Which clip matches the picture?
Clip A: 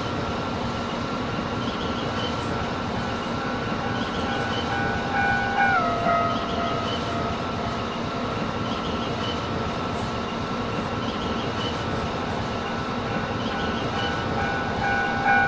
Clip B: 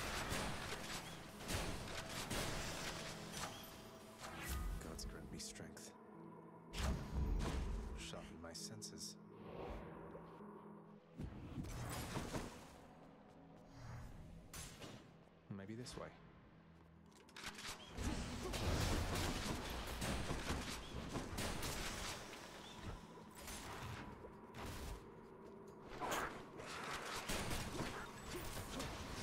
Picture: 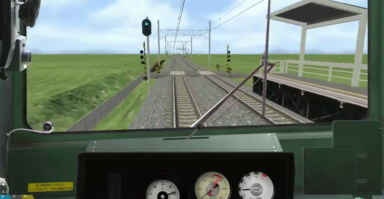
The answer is A